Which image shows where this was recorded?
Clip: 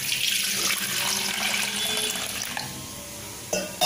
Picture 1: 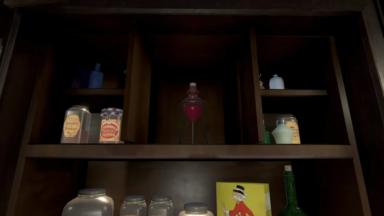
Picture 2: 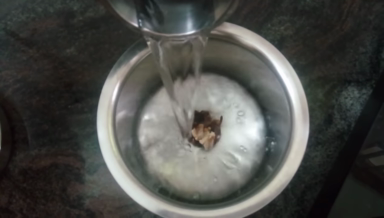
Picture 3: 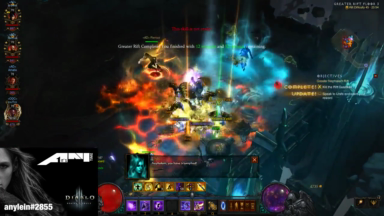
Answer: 2